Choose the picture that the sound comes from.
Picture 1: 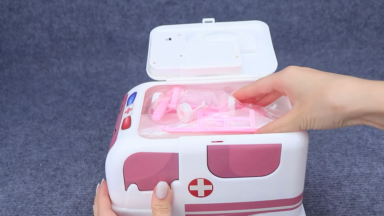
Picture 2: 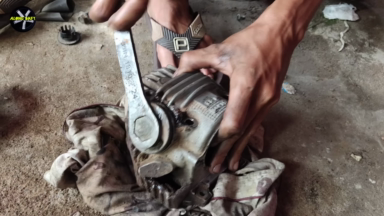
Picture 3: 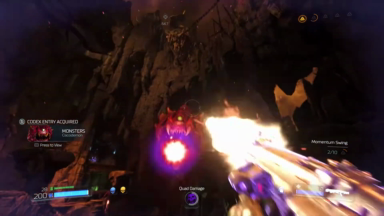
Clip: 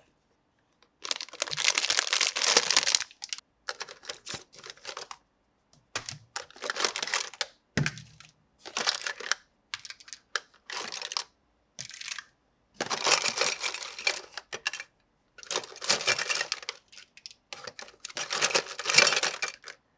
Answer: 1